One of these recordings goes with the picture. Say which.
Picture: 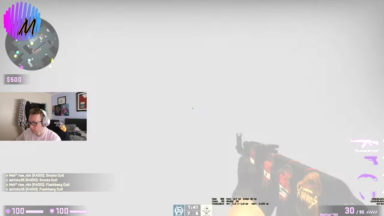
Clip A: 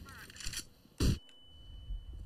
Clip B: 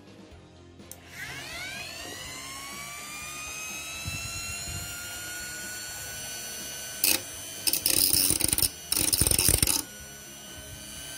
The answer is A